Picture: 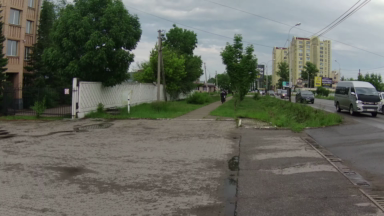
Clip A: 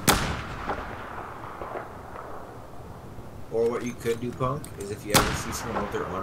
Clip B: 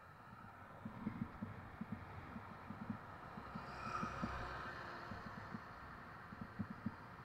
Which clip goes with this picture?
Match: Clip B